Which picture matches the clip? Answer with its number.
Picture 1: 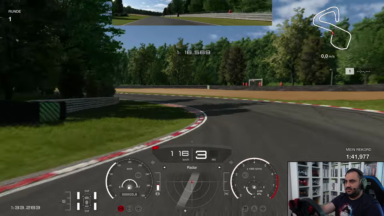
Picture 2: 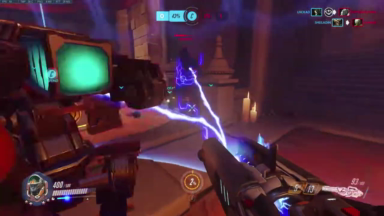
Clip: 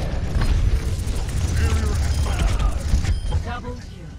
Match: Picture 2